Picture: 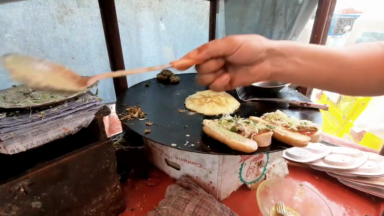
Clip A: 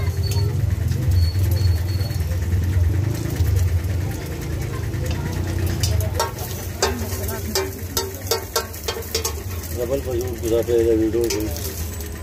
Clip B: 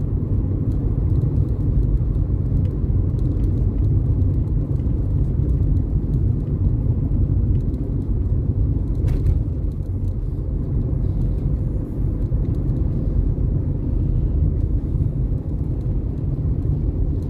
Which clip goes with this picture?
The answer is A